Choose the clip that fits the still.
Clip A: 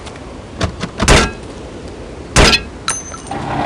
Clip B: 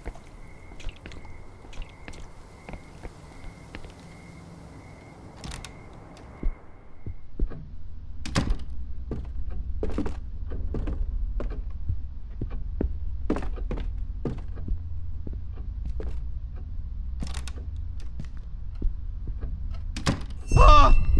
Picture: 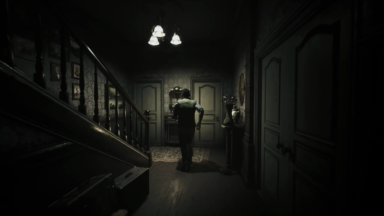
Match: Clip B